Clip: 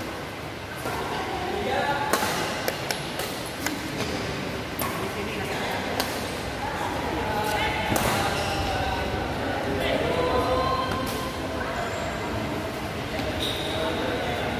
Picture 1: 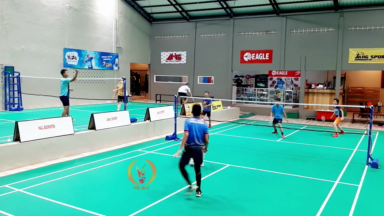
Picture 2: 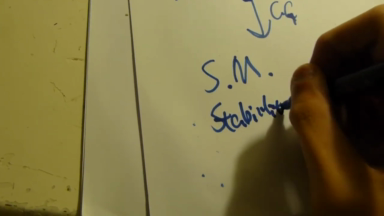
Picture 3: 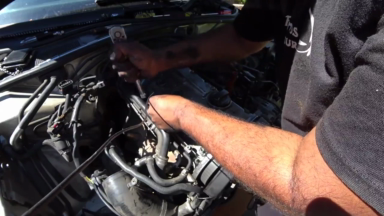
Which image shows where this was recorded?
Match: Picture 1